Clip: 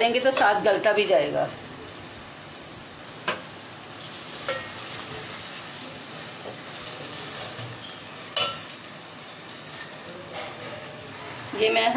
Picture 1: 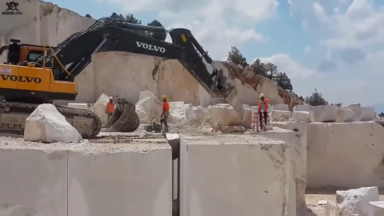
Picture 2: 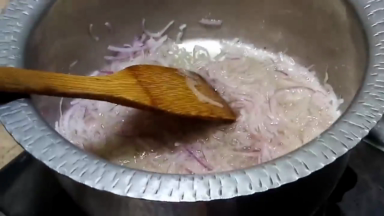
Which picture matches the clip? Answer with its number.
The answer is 2